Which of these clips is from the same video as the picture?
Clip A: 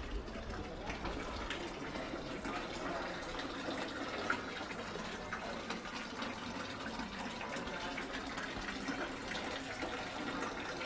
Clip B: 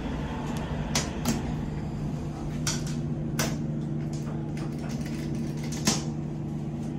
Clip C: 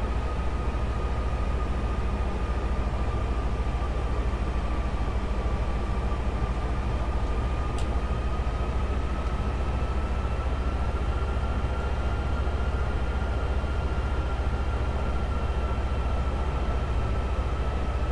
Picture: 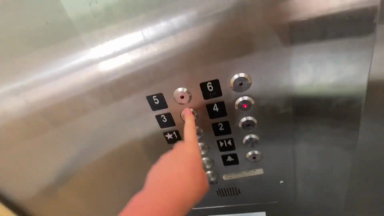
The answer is B